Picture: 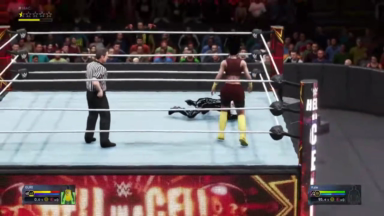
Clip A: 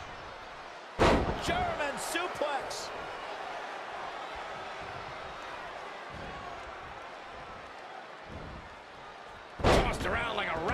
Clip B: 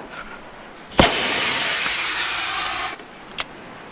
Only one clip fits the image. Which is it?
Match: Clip A